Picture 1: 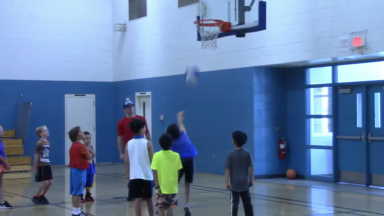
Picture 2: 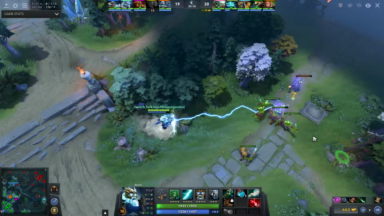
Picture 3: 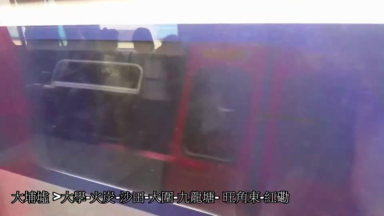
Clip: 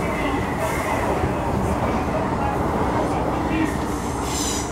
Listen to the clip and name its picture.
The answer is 3